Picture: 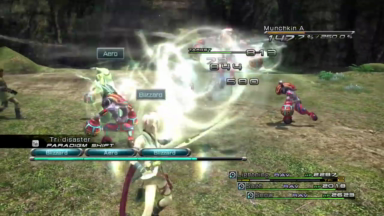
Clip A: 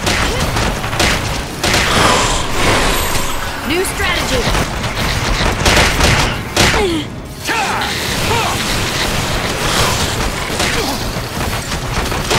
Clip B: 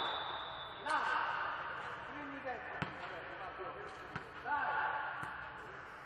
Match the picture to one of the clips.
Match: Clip A